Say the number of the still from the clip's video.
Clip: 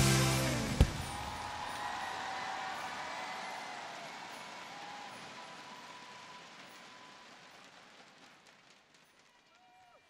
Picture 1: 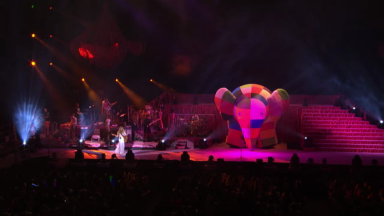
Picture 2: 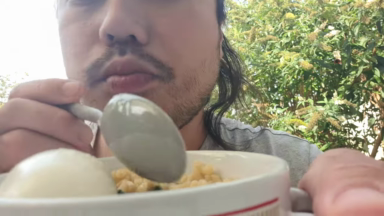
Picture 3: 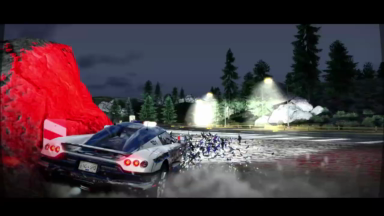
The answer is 1